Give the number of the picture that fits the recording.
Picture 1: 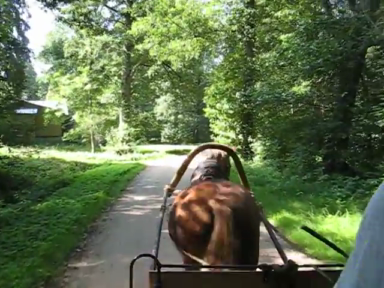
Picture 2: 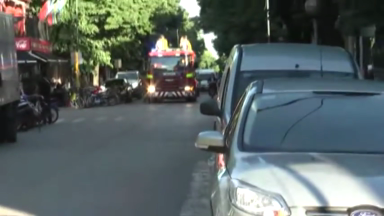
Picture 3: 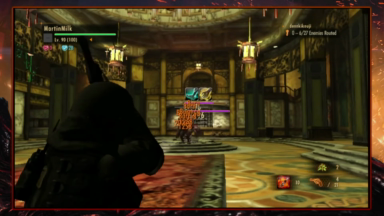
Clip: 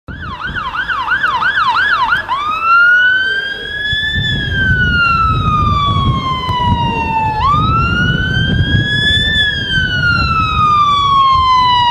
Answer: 2